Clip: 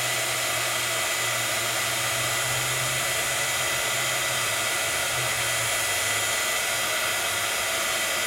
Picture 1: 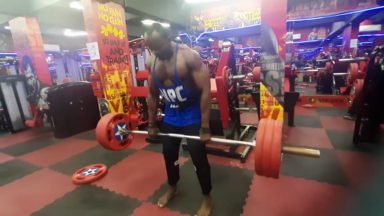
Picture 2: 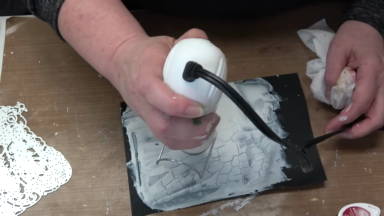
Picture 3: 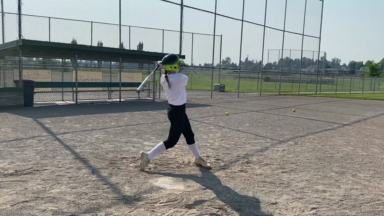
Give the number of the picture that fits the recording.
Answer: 2